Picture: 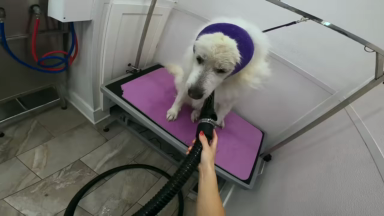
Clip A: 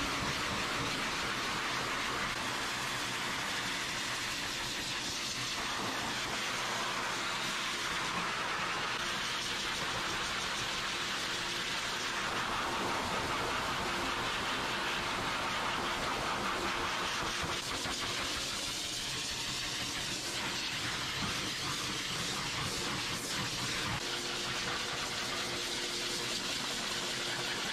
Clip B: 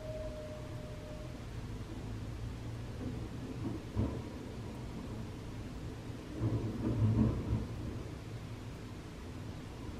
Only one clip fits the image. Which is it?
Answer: A